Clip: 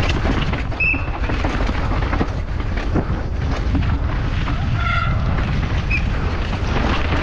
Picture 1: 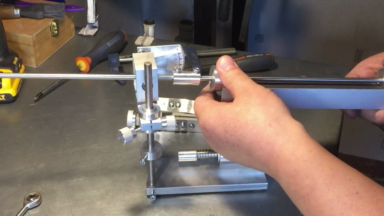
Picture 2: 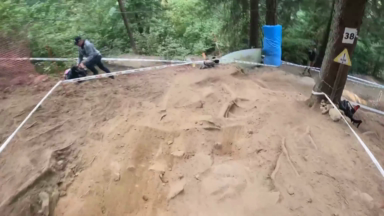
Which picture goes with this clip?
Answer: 2